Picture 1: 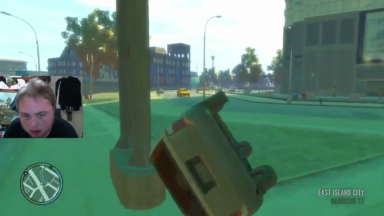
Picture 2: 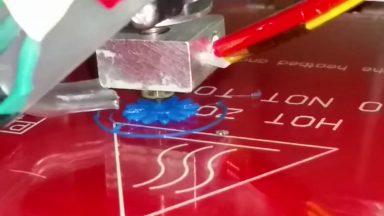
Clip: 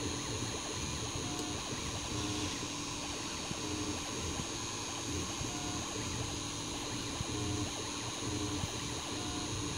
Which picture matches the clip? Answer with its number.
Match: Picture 2